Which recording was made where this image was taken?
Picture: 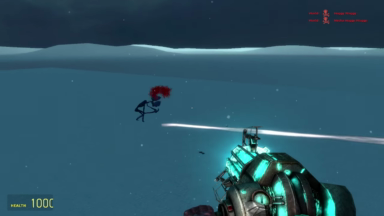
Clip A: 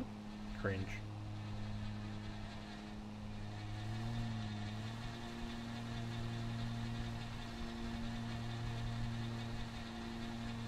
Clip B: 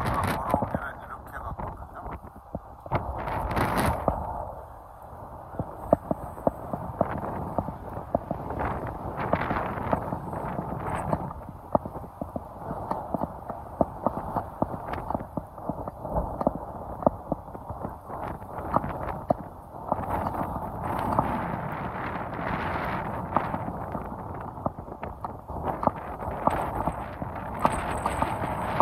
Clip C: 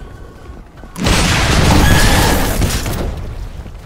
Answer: C